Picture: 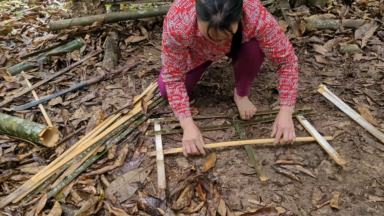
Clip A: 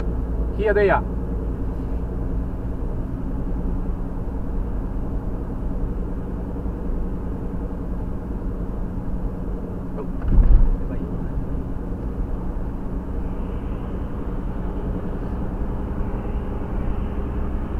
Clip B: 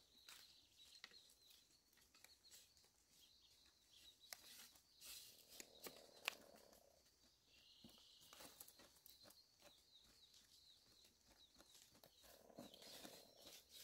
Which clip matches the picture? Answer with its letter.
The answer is B